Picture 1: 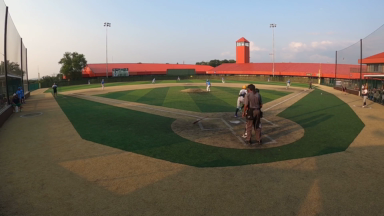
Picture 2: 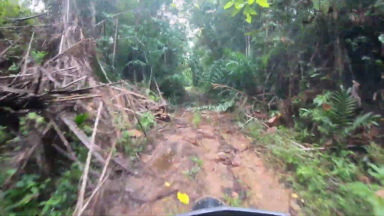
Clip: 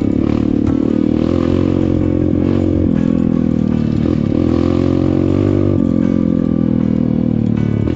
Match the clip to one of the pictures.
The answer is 2